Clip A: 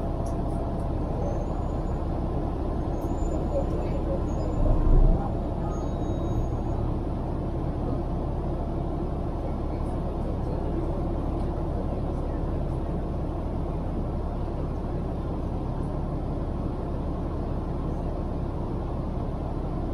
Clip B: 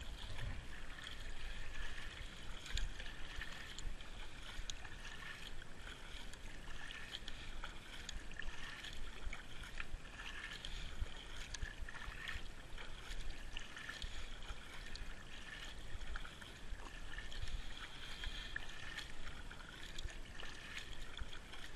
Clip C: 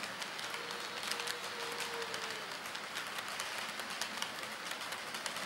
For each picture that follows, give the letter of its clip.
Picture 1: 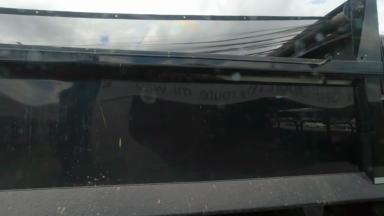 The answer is A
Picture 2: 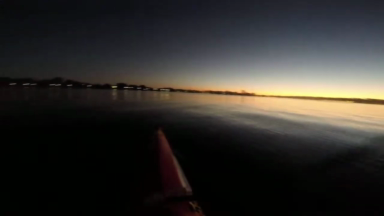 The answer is B